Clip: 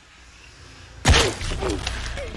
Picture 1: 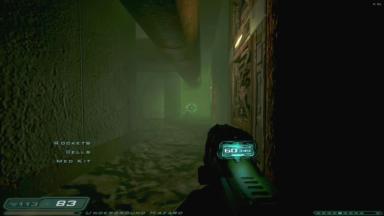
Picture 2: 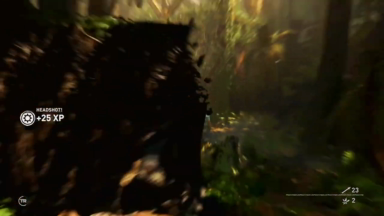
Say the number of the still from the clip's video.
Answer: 2